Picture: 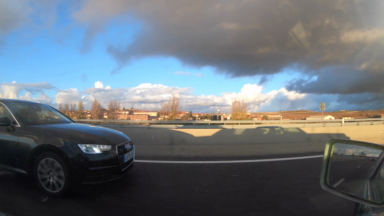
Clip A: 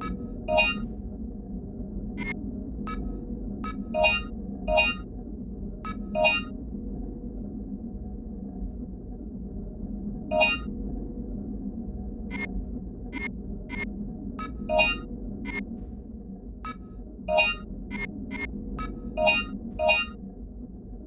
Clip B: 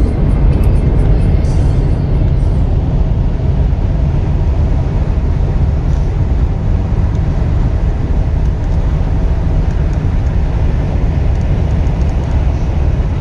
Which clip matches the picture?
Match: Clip B